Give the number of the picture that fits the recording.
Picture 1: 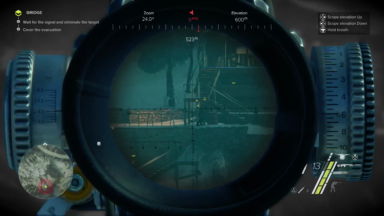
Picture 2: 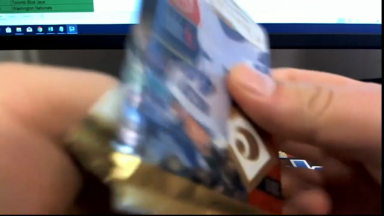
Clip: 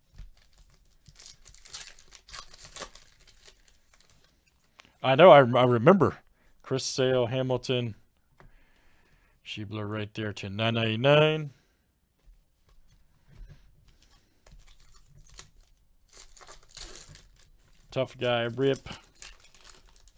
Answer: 2